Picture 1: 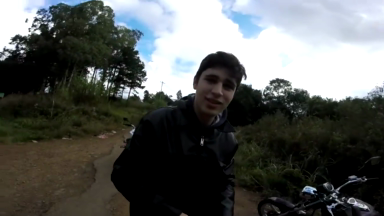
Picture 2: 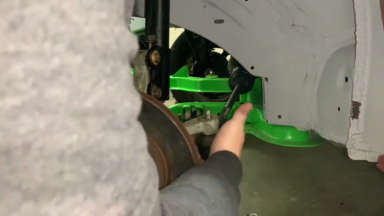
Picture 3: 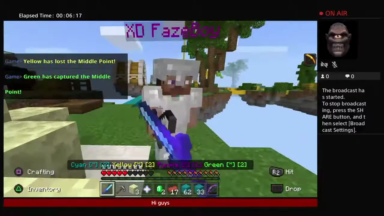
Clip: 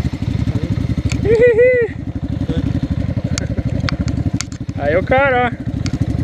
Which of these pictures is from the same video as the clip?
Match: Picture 1